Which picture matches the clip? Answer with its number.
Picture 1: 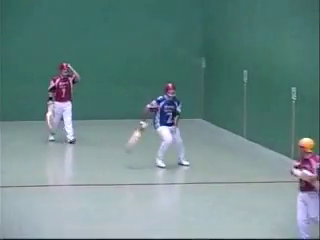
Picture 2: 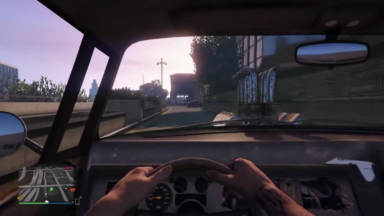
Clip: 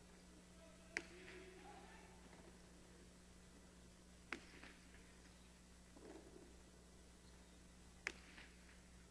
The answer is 1